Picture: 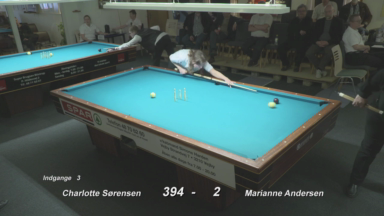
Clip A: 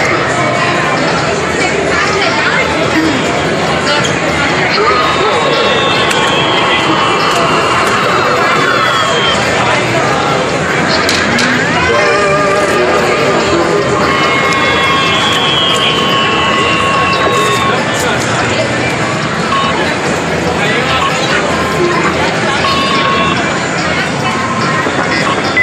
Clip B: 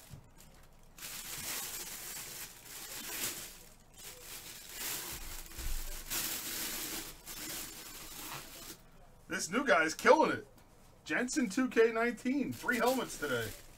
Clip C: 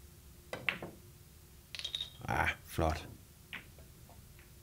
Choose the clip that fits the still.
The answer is C